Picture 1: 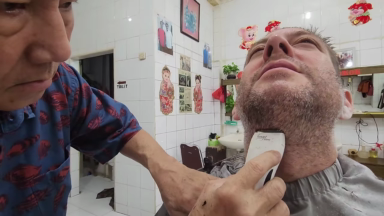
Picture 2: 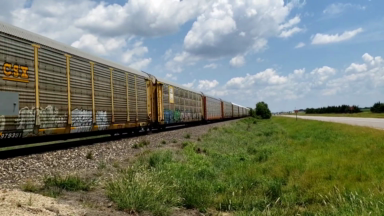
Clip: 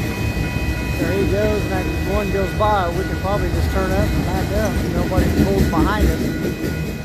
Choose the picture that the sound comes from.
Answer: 2